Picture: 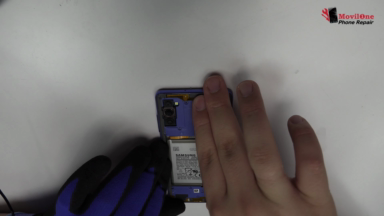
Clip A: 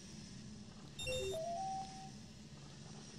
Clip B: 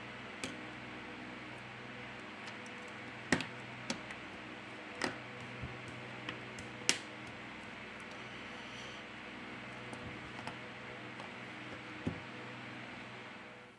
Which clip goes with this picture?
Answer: B